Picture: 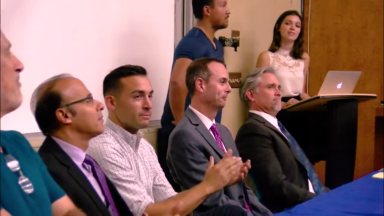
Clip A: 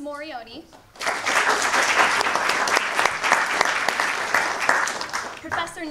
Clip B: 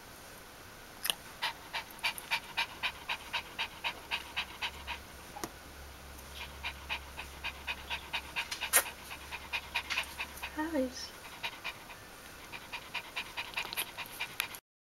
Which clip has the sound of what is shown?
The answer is A